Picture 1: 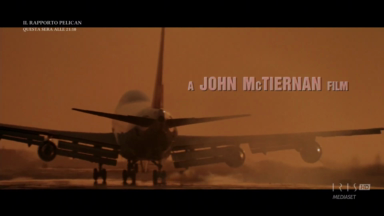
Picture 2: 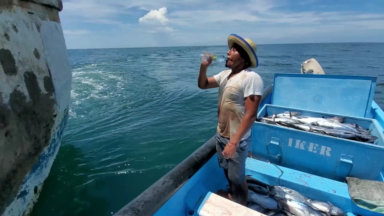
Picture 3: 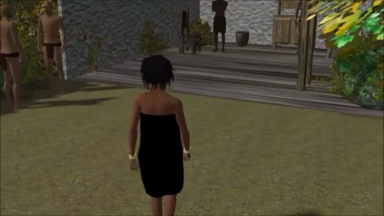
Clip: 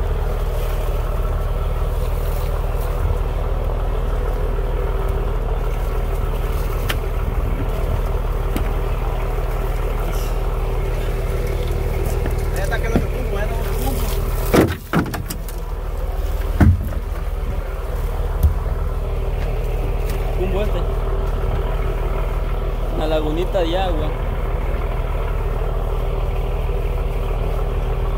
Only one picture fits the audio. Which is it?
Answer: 2